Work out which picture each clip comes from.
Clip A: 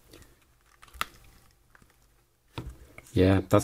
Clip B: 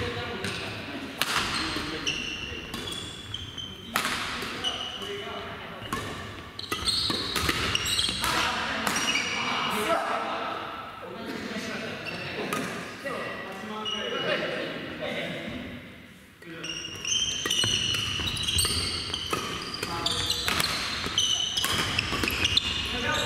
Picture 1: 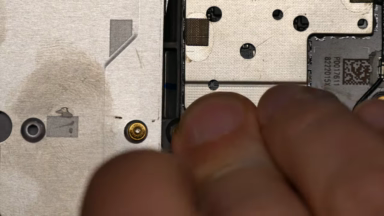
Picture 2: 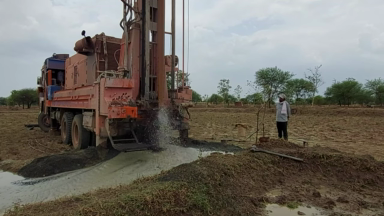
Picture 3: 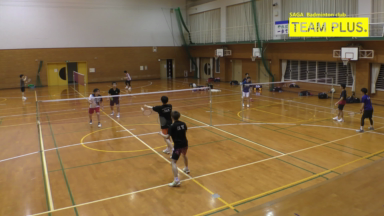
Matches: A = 1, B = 3